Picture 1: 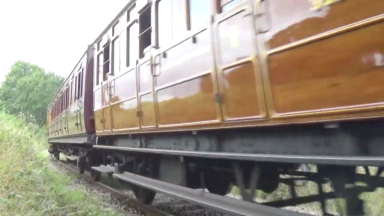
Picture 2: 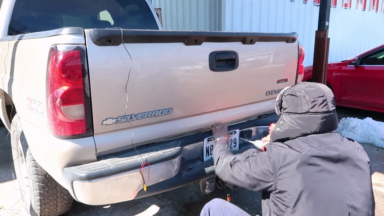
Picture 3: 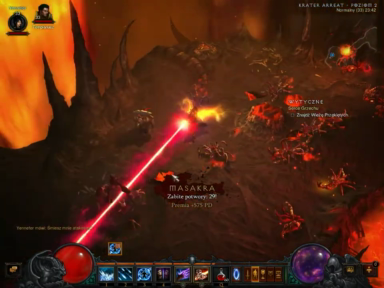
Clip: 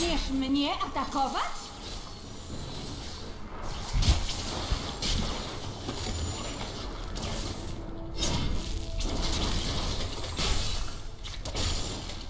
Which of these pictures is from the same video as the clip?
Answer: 3